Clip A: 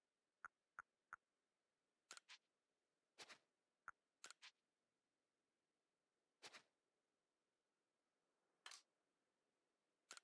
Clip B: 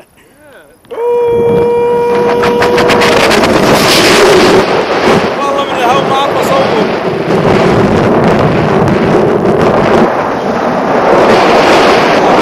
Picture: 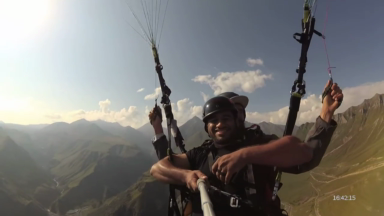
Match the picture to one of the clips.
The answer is B